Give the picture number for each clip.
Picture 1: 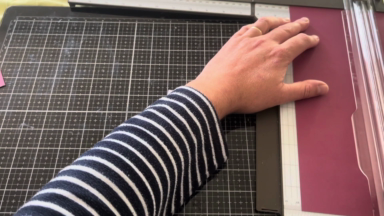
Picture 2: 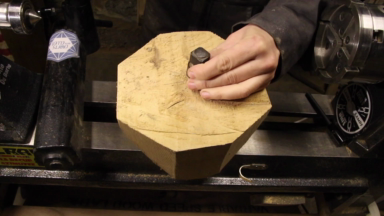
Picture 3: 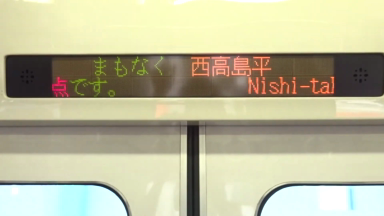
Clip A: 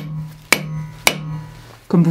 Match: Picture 2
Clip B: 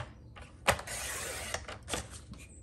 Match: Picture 1